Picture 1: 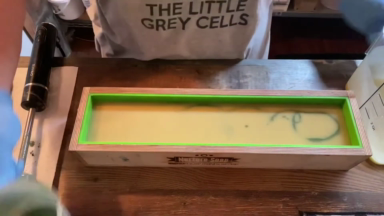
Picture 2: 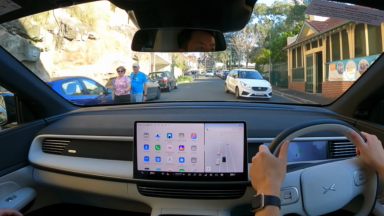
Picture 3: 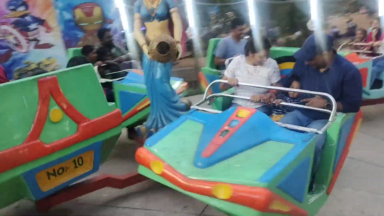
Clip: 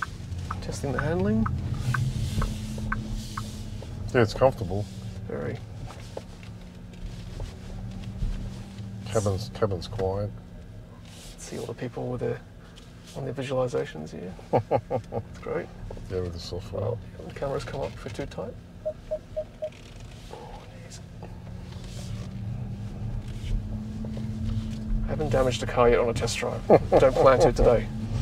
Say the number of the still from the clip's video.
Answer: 2